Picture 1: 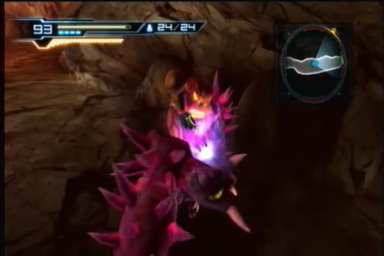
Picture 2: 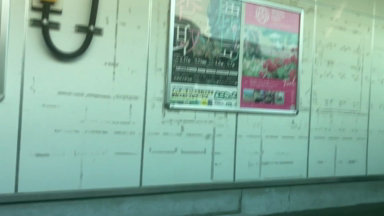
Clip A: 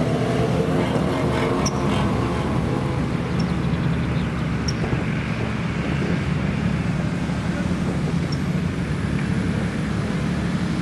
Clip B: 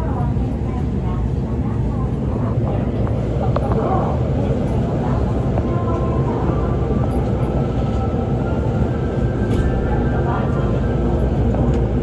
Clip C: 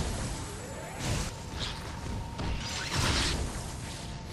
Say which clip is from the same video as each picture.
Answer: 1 C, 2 B